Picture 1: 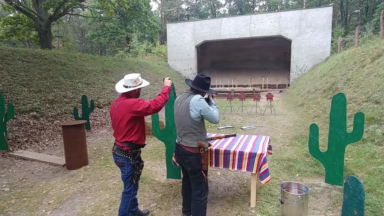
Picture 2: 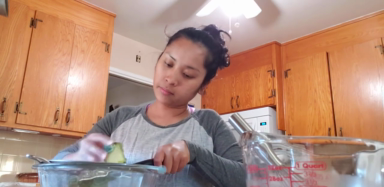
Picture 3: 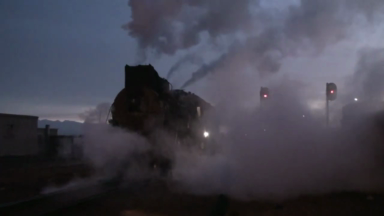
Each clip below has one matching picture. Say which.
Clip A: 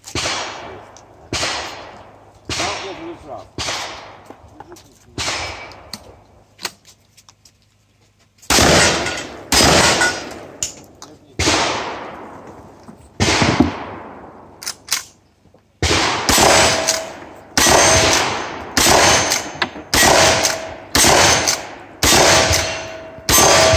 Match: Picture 1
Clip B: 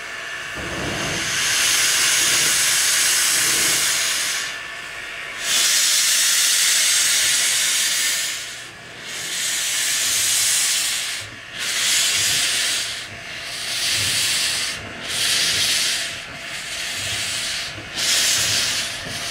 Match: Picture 3